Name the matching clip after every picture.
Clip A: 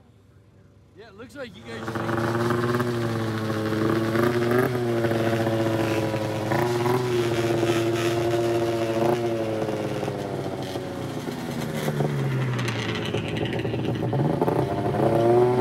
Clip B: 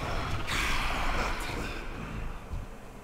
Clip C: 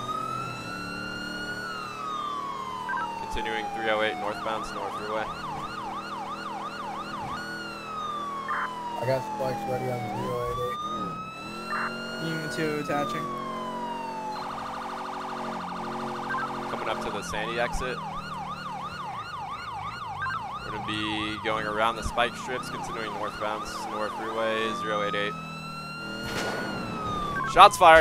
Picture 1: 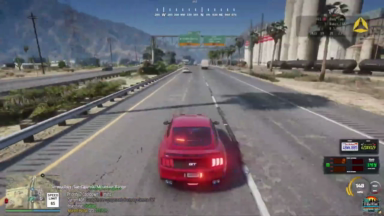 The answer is C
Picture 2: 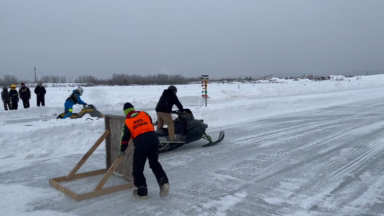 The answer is A